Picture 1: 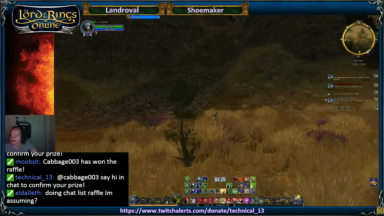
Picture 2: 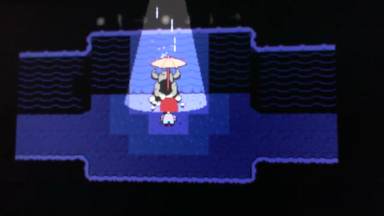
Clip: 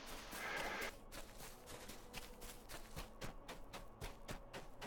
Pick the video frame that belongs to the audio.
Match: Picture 1